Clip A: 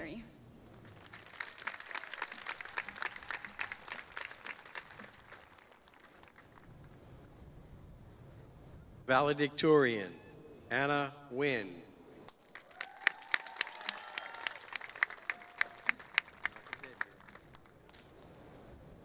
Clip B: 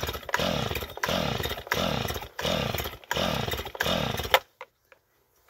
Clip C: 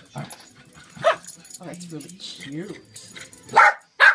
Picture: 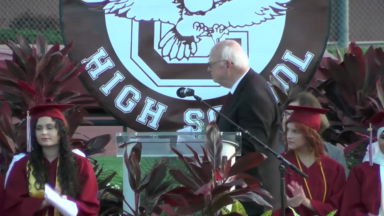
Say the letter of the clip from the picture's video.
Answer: A